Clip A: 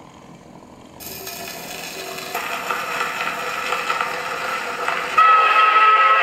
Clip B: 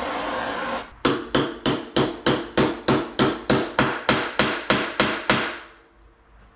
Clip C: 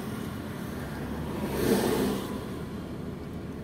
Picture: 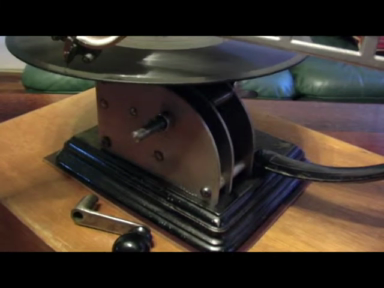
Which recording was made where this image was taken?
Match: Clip A